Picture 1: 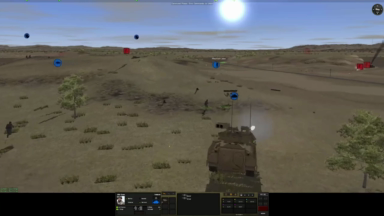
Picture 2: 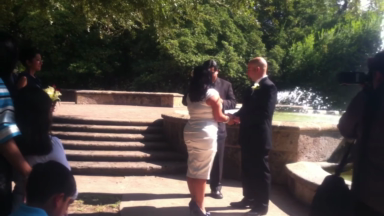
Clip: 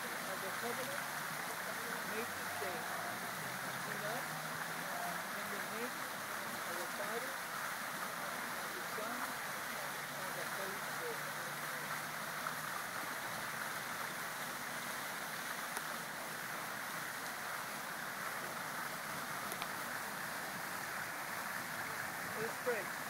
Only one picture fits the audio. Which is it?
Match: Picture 2